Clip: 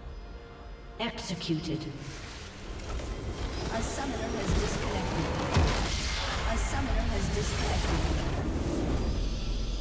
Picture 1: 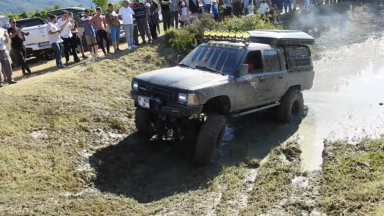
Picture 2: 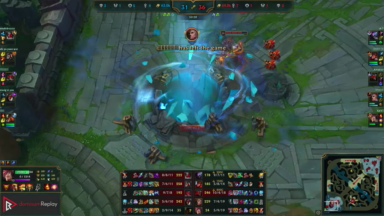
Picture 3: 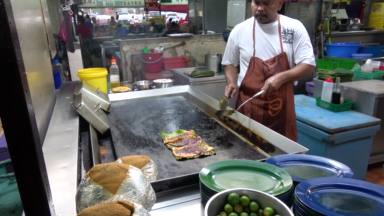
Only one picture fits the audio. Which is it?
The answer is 2